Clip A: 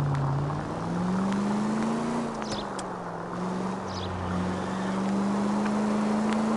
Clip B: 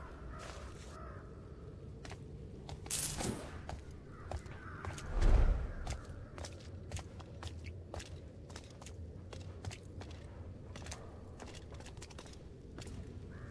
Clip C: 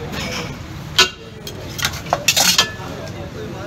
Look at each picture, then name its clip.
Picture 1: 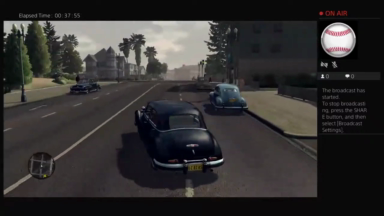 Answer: A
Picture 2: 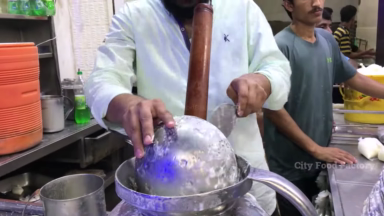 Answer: C